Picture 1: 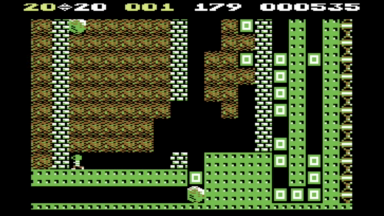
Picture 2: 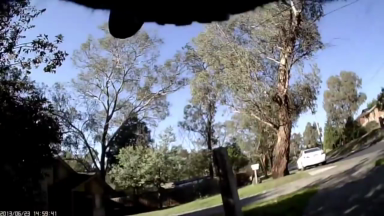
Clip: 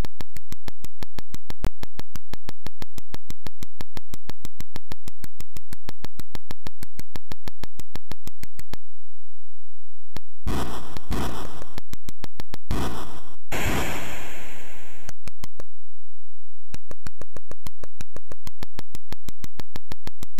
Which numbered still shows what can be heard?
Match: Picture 1